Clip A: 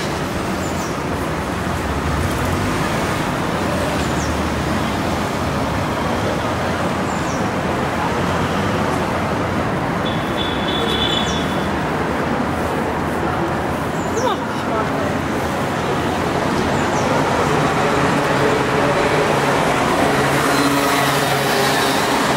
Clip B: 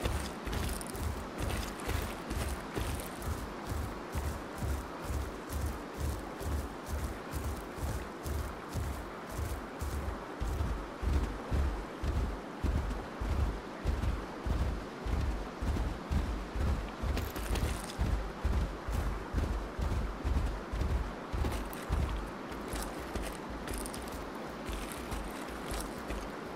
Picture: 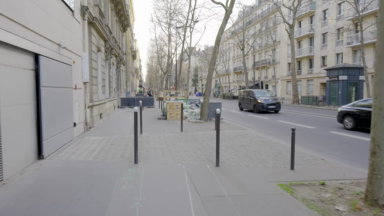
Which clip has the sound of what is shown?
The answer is A